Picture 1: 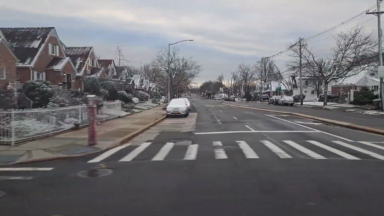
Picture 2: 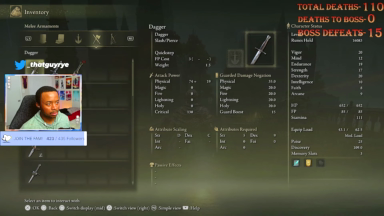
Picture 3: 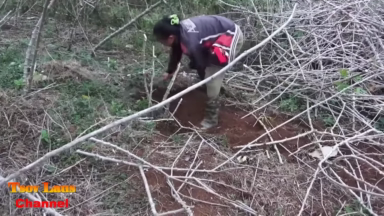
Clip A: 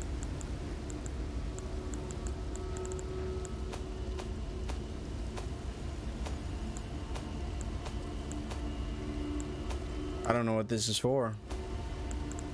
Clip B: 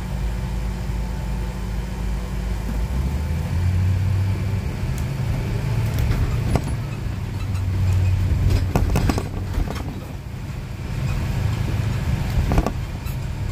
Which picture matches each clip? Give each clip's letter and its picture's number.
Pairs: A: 2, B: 1